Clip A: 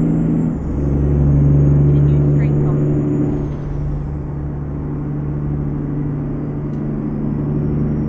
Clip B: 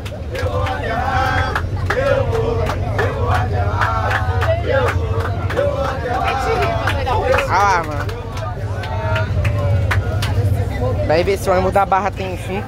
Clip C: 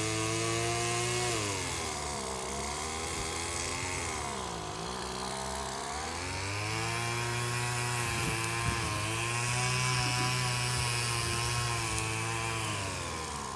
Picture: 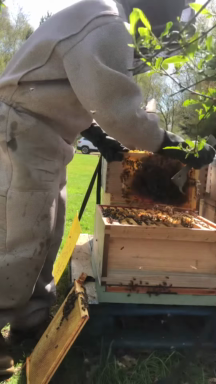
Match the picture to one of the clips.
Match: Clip C